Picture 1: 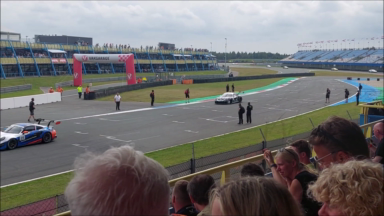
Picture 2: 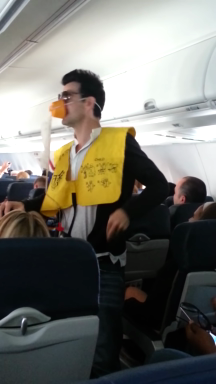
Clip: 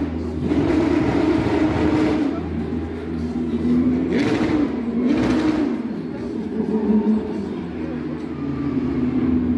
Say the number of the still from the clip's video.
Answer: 1